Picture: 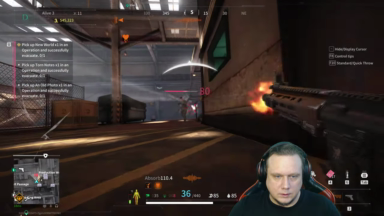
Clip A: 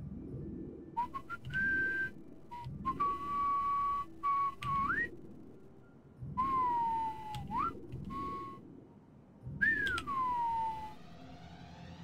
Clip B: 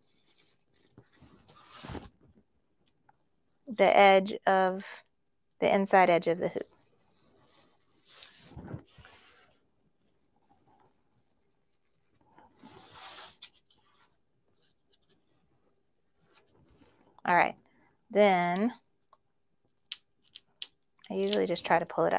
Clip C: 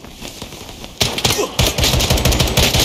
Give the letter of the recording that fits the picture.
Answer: C